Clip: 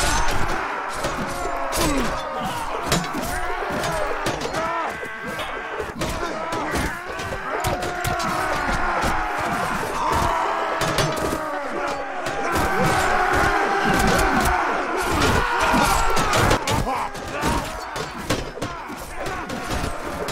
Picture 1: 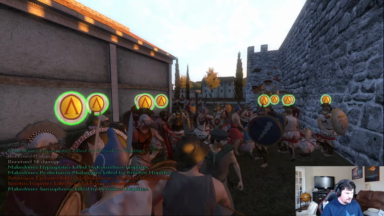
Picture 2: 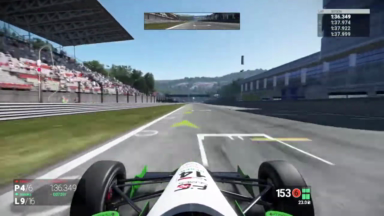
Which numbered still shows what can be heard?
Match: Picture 1